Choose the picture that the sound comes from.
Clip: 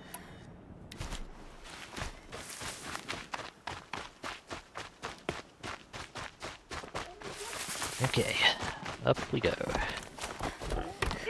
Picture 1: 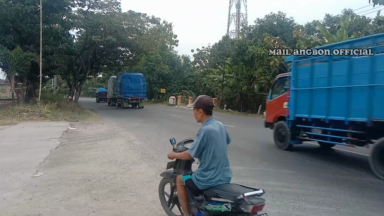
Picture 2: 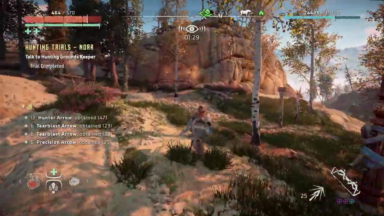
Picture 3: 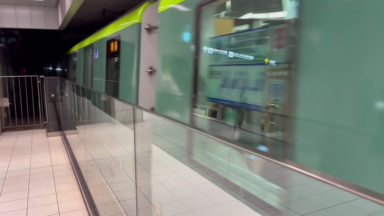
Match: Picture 2